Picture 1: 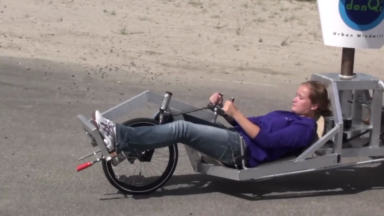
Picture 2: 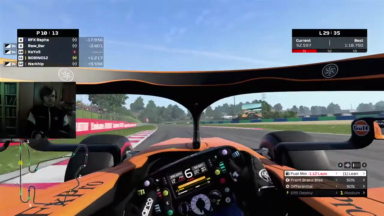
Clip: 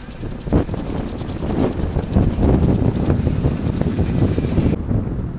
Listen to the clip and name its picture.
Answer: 1